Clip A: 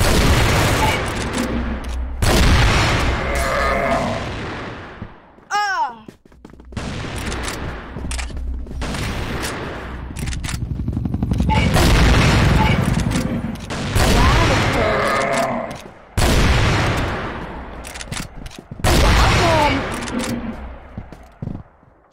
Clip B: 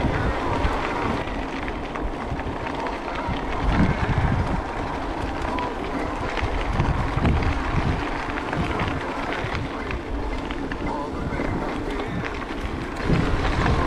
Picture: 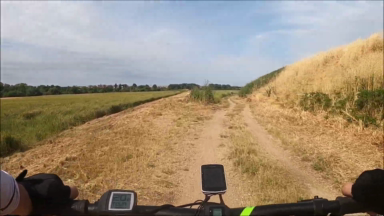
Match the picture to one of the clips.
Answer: B